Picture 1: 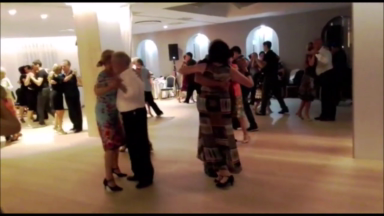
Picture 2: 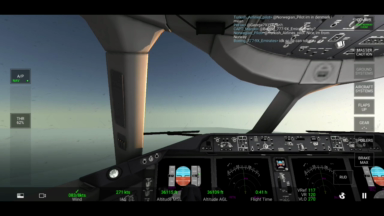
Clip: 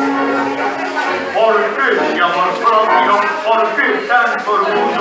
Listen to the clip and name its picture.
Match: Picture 1